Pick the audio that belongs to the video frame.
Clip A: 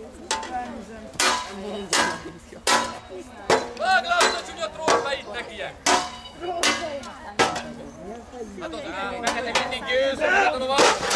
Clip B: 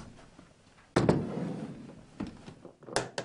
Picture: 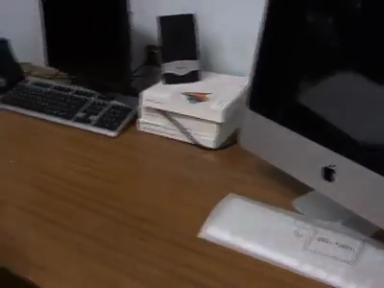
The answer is B